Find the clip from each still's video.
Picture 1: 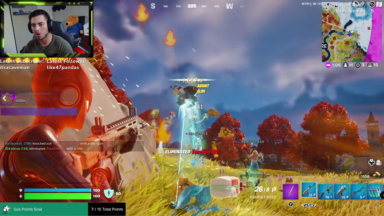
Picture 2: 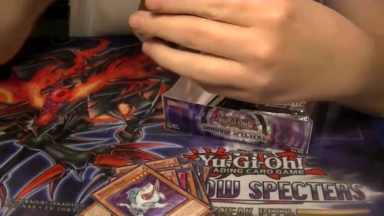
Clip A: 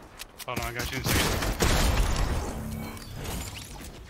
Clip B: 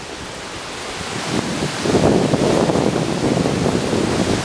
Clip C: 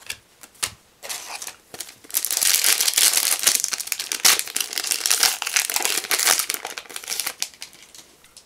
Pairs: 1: A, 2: C